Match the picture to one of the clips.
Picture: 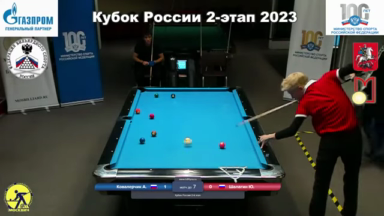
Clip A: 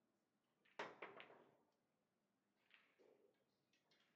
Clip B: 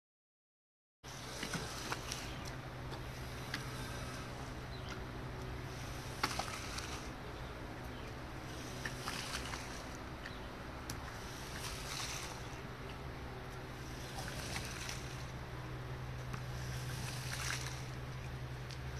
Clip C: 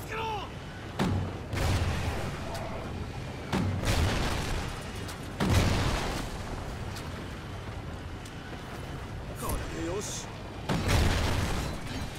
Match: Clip A